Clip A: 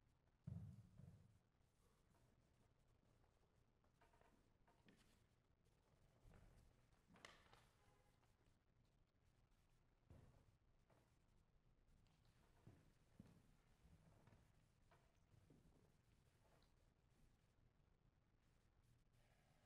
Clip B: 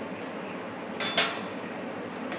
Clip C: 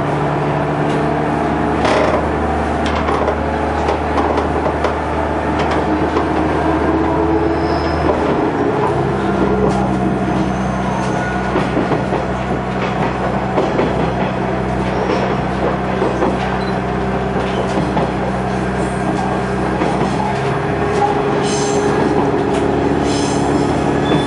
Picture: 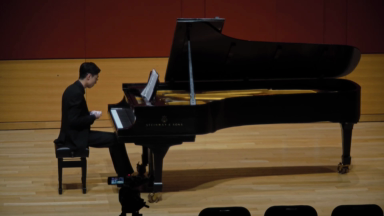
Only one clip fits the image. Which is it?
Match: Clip A